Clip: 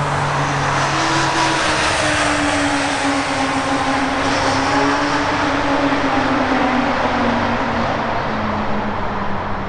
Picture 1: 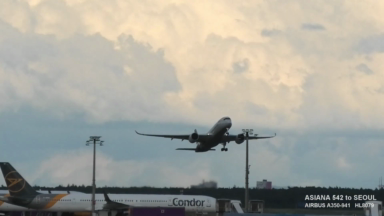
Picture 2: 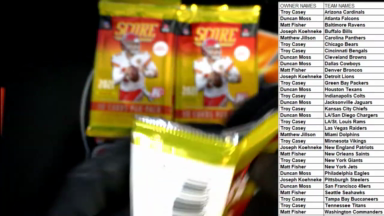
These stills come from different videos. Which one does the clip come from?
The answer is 1